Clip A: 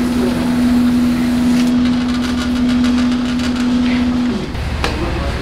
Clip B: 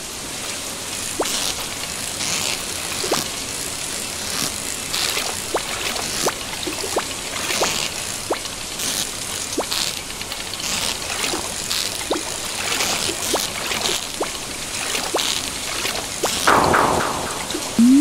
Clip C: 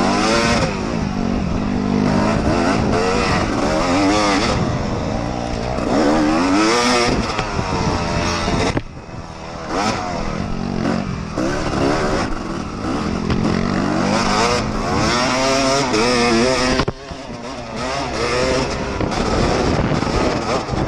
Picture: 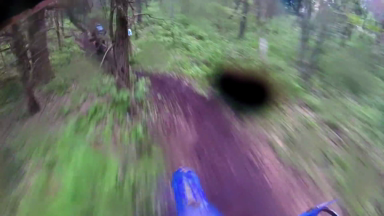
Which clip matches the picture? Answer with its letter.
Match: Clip C